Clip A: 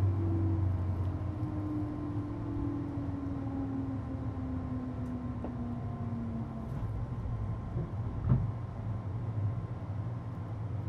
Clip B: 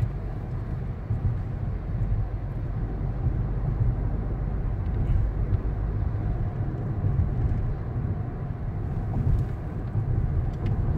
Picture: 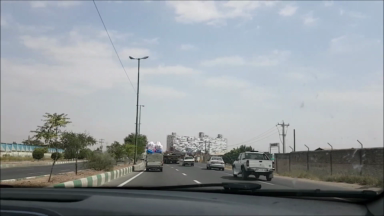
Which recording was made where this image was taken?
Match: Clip B